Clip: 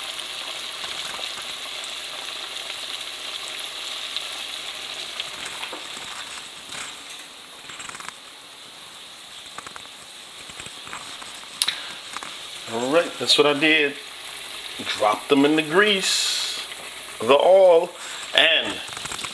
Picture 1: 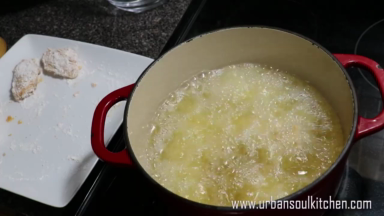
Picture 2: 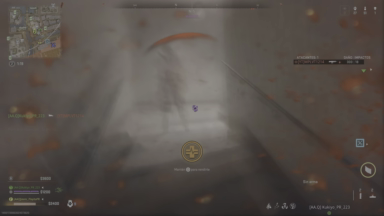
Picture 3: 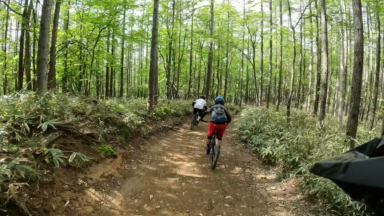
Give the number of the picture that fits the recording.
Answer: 1